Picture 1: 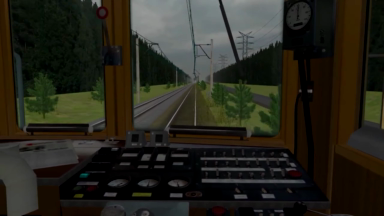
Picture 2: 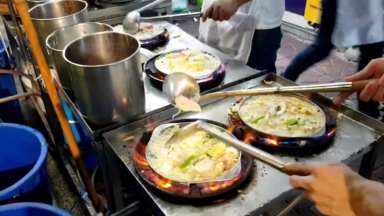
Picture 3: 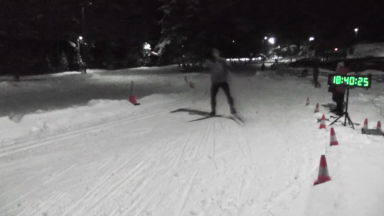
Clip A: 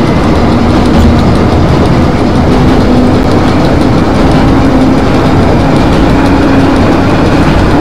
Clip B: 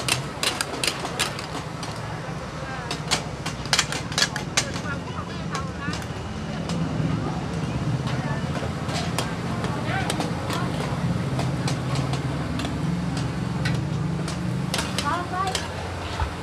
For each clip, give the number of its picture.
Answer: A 1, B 2